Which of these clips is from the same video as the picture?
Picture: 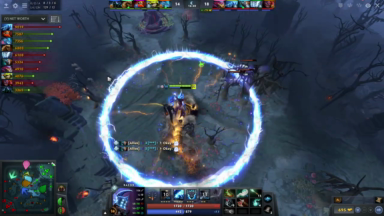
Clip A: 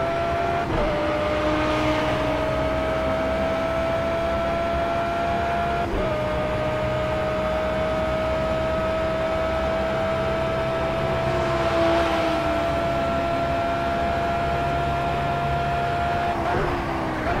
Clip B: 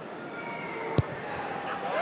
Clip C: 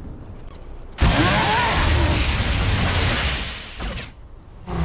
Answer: C